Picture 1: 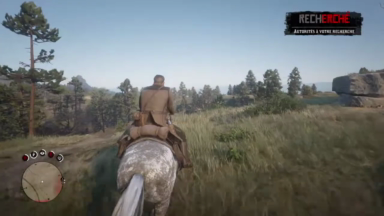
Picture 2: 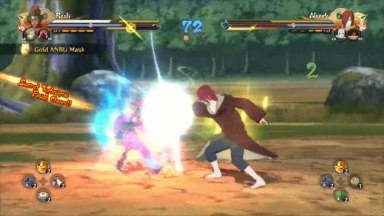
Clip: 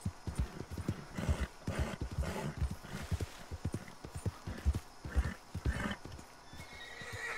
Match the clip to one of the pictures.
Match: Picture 1